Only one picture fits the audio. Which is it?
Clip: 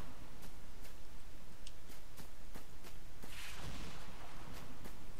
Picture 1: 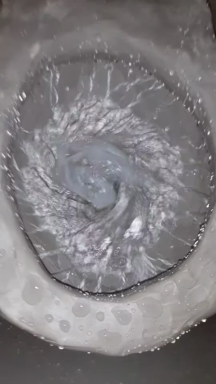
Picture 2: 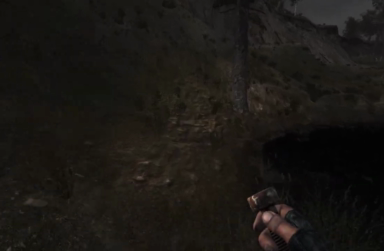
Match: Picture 2